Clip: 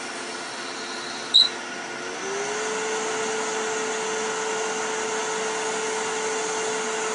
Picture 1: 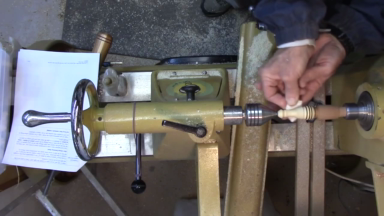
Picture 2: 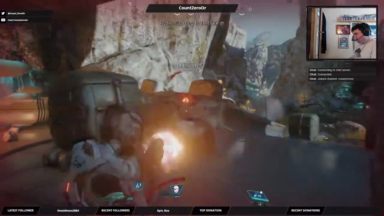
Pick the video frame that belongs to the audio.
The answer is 1